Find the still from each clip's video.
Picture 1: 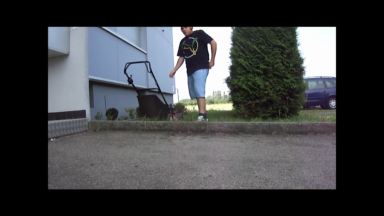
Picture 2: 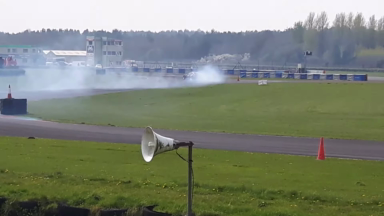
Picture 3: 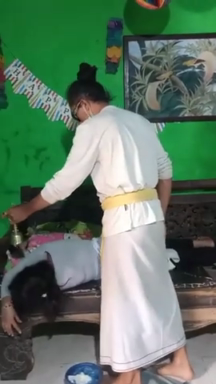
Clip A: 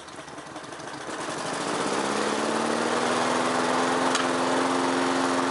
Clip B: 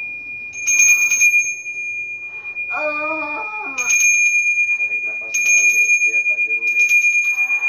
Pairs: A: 1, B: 3